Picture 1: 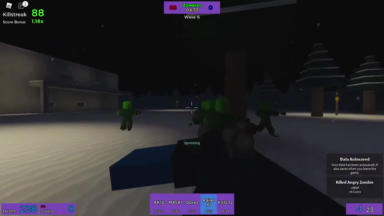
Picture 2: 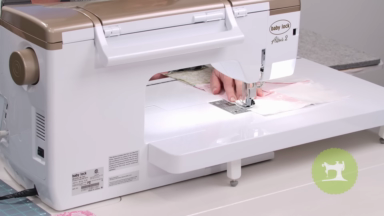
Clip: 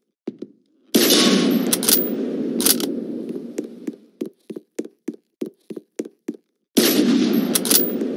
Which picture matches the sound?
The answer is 1